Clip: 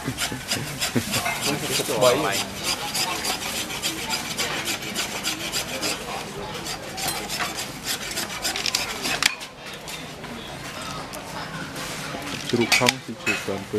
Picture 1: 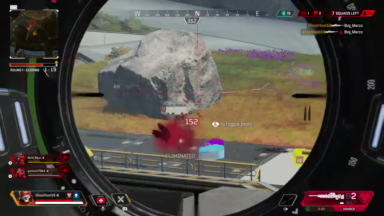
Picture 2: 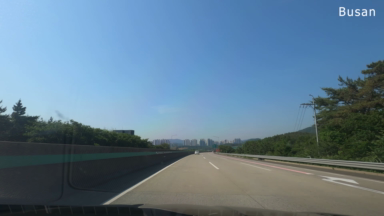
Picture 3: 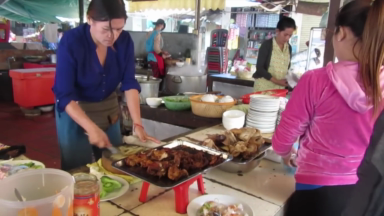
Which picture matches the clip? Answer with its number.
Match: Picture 3